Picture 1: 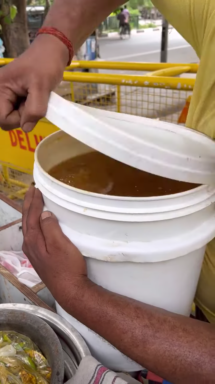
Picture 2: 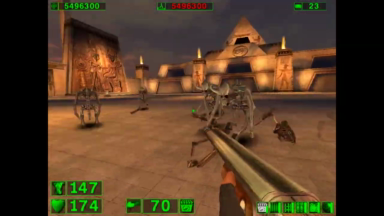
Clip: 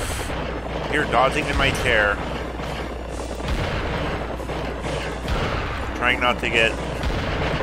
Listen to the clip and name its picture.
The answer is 2